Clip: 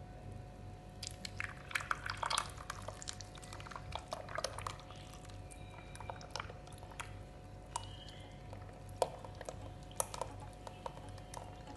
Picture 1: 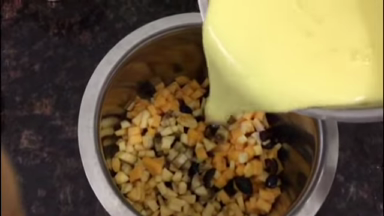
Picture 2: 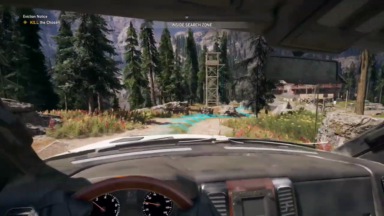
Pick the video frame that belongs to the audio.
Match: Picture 1